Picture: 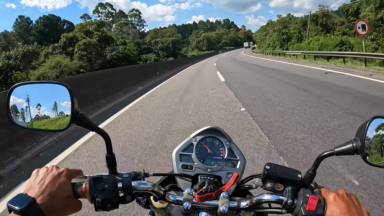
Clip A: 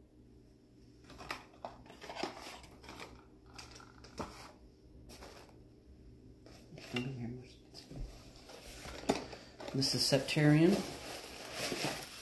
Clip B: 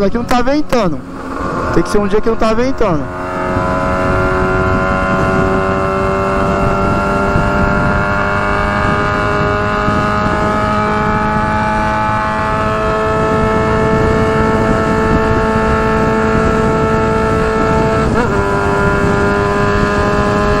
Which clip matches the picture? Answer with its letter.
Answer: B